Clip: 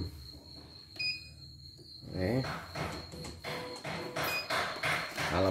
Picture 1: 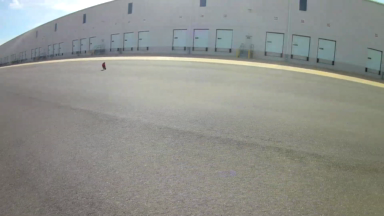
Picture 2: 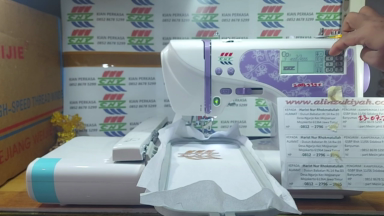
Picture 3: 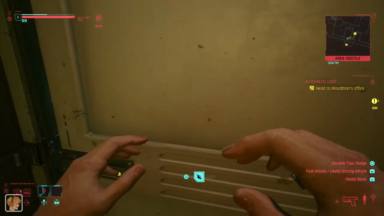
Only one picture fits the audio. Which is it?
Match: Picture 2